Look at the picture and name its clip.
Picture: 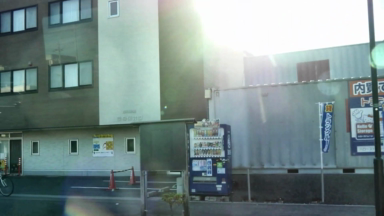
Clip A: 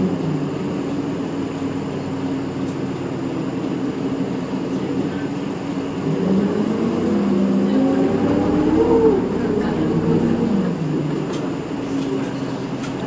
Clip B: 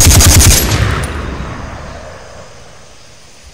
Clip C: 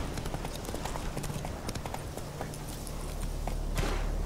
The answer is A